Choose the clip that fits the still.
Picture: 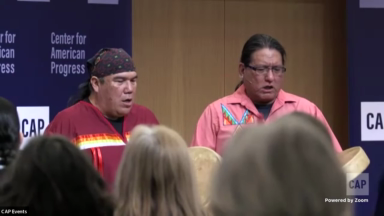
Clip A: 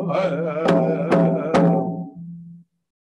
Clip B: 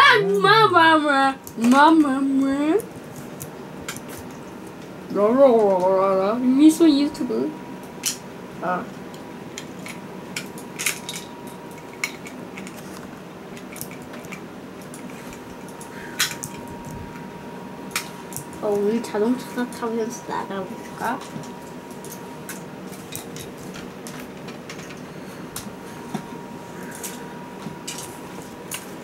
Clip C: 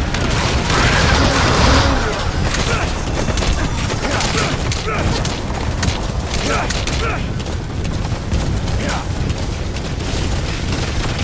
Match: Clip A